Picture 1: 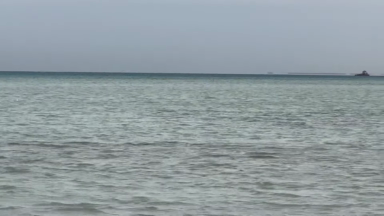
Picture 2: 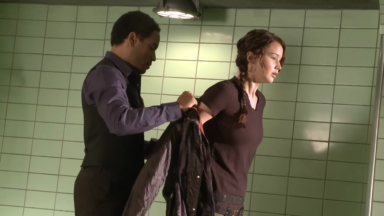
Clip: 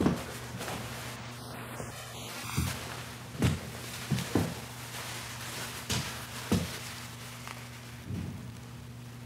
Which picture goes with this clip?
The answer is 2